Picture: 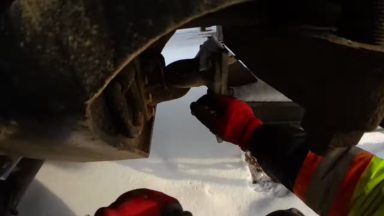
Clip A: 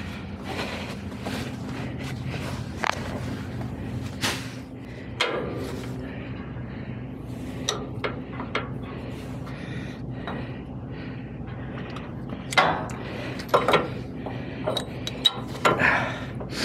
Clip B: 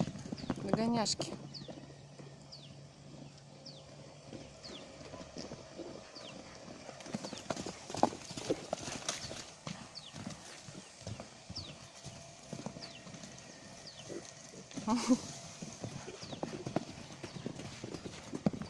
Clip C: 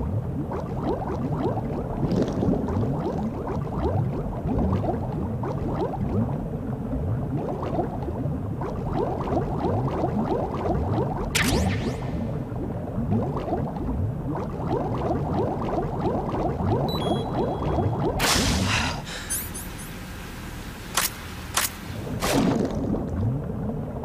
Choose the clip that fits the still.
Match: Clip A